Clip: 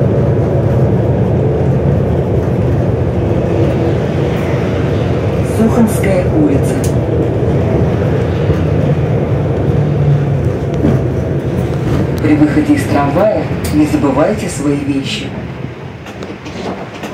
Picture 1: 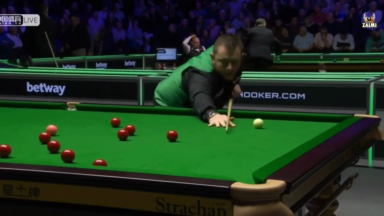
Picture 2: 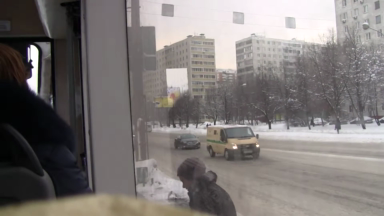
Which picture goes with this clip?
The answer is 2